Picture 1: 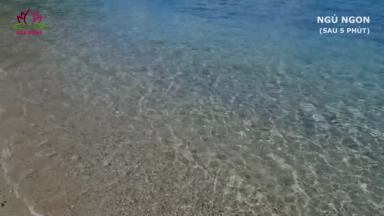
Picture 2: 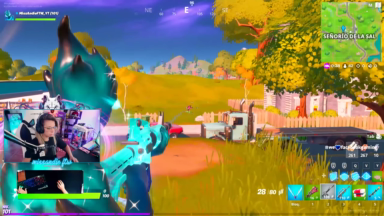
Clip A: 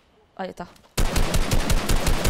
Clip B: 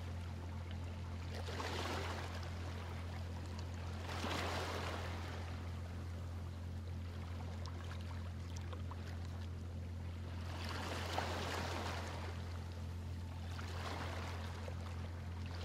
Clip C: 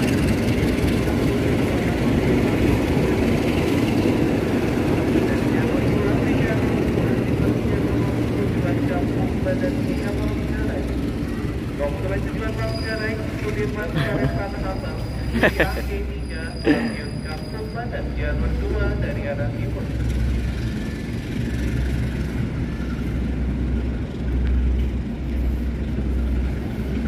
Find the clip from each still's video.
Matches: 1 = B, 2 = A